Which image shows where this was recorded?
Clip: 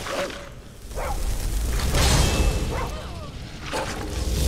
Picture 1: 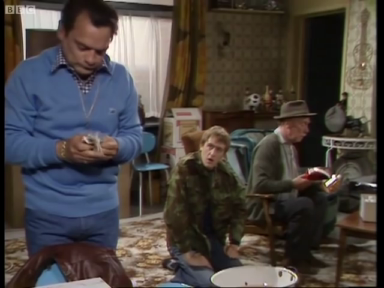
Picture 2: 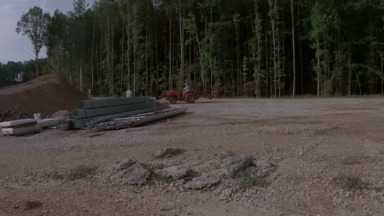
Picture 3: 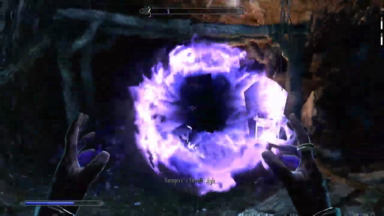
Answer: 3